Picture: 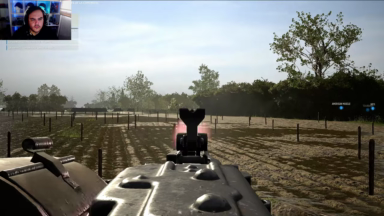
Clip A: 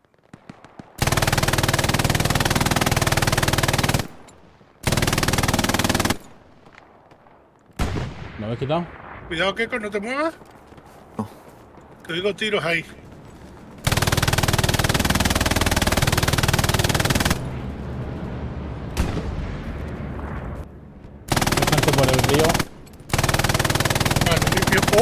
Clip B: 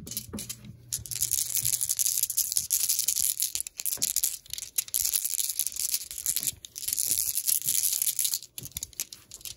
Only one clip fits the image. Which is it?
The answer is A